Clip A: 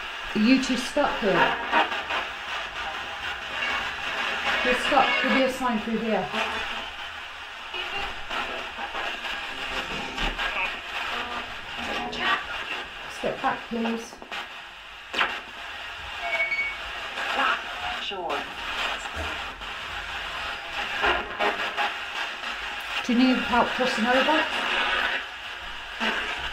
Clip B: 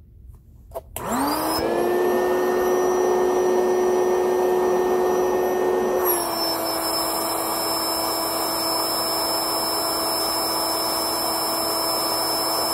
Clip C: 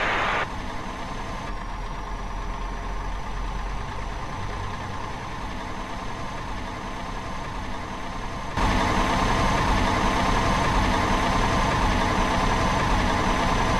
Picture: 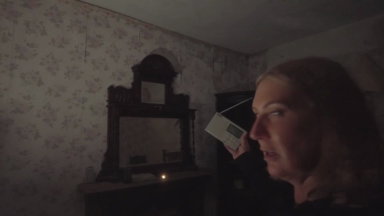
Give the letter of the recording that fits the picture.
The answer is A